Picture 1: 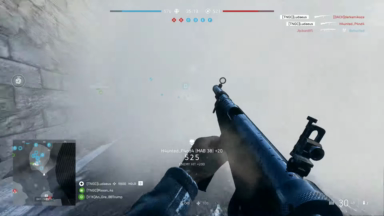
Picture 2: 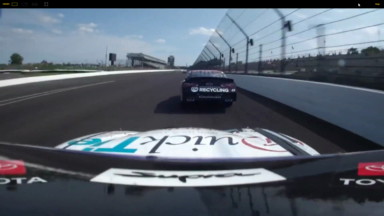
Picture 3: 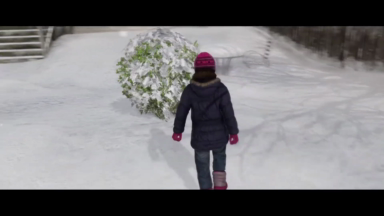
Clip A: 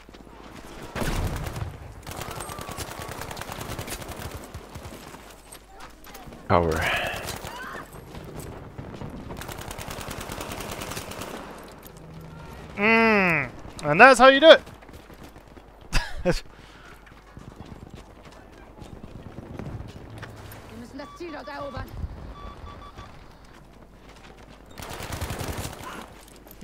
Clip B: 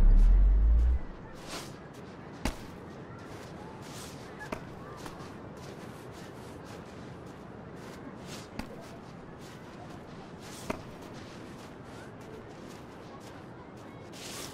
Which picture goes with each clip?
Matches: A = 1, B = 3